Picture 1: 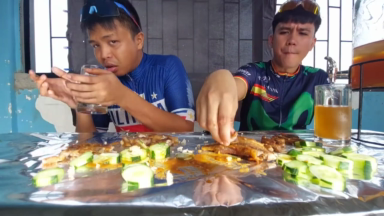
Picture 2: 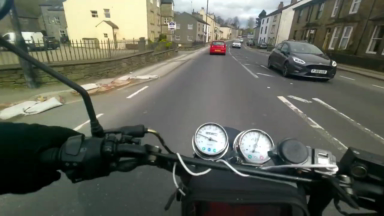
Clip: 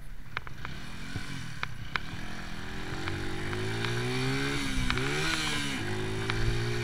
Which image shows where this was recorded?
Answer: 2